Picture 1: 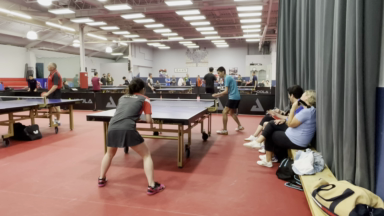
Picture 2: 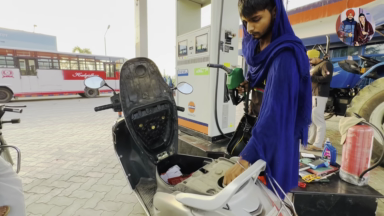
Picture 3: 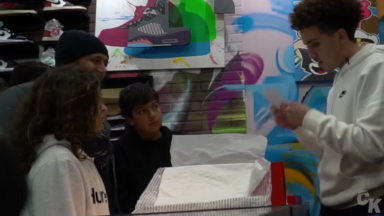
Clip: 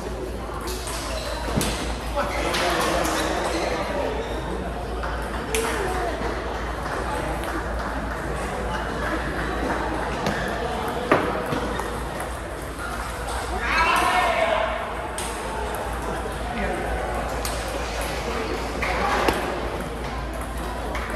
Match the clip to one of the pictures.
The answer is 1